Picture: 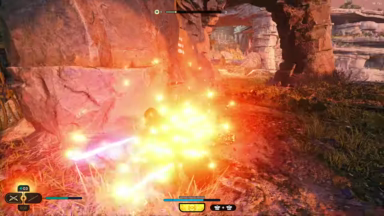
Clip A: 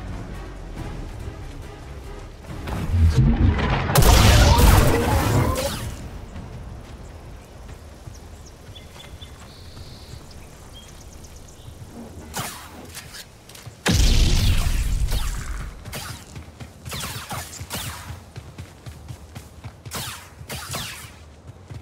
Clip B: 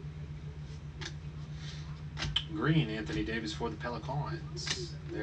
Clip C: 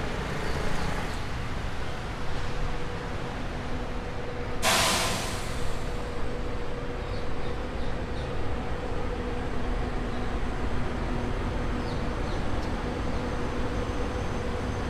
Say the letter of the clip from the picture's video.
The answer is A